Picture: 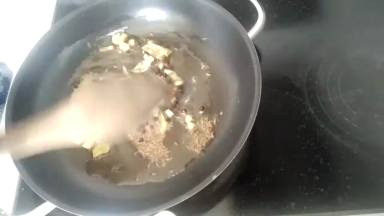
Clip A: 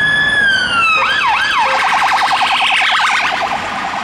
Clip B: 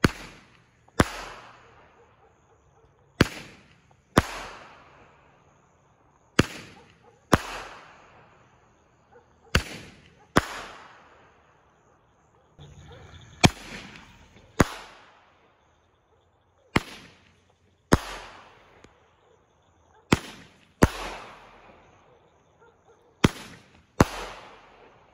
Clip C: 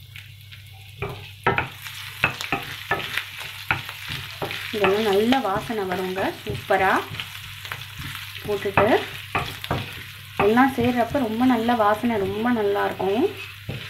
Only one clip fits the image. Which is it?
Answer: C